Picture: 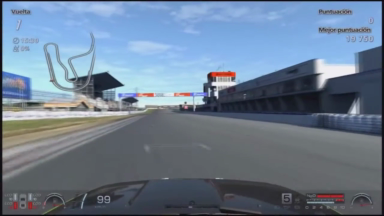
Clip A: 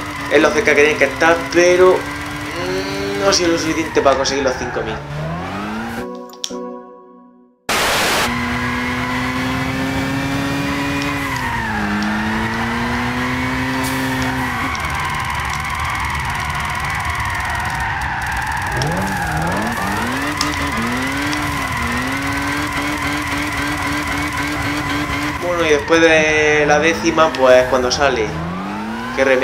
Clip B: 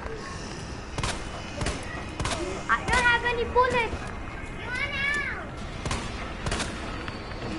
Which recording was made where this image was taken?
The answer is A